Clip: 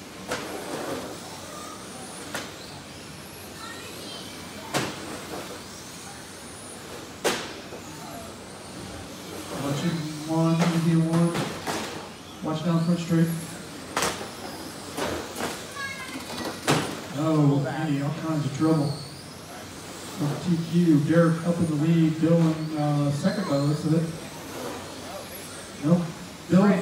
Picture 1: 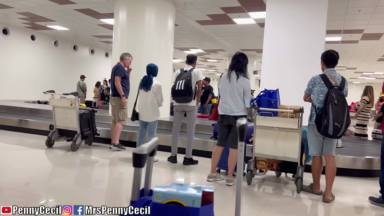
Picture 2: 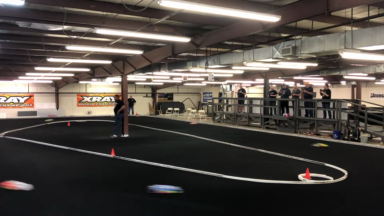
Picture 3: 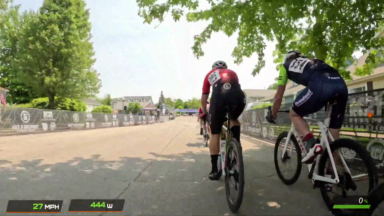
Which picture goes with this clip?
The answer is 2